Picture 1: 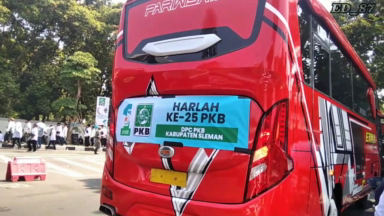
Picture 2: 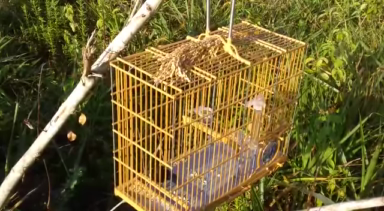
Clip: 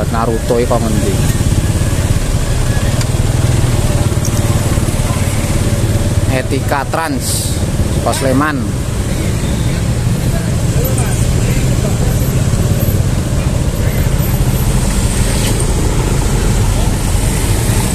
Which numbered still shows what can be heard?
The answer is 1